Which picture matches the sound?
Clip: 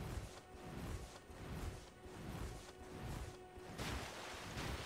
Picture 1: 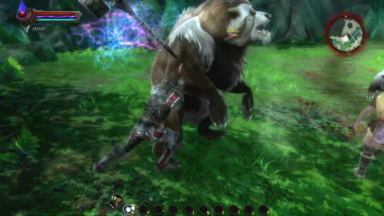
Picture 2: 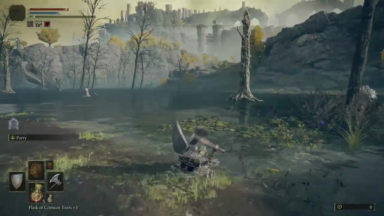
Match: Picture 2